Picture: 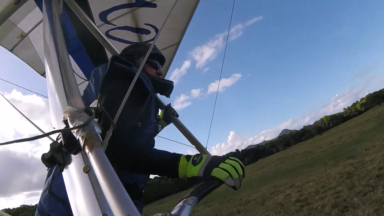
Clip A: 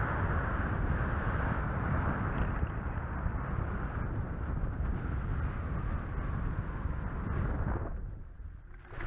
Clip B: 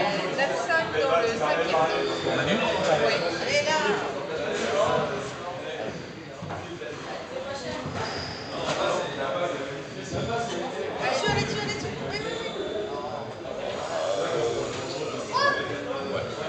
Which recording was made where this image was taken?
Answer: A